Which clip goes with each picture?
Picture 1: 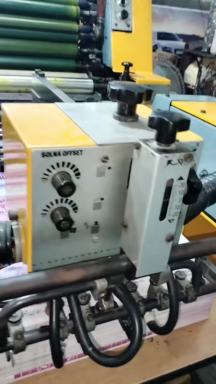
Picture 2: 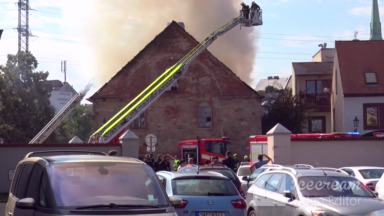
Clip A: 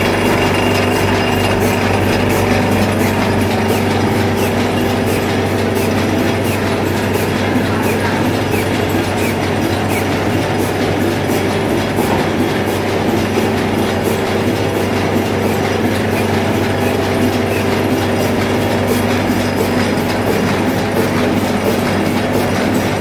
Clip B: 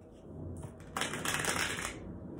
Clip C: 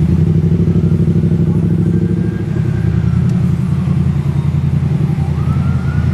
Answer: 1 A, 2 C